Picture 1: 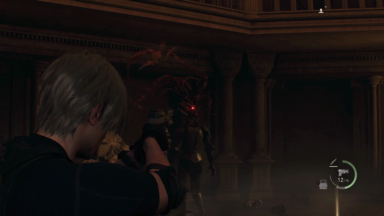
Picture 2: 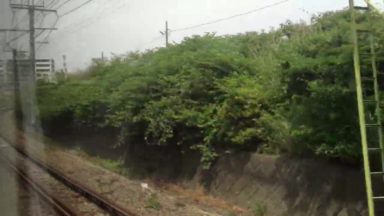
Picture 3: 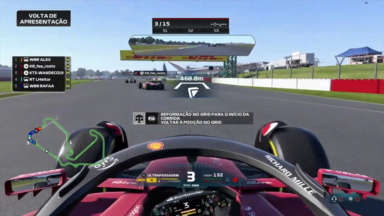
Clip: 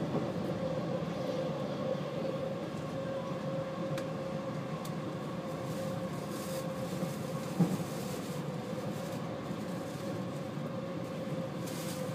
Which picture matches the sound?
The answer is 2